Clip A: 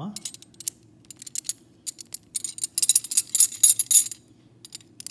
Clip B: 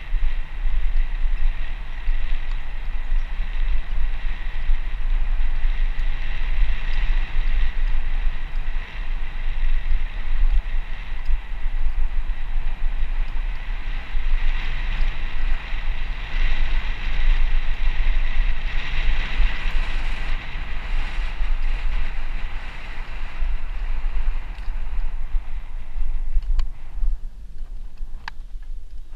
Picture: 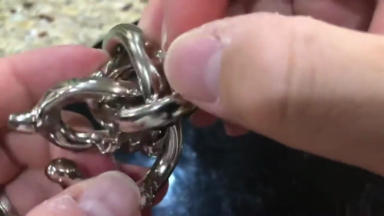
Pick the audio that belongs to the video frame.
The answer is A